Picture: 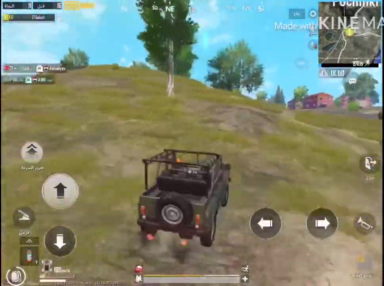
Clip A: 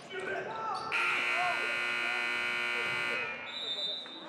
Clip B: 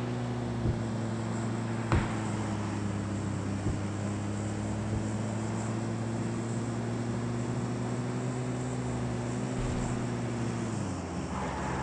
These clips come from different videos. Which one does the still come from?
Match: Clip B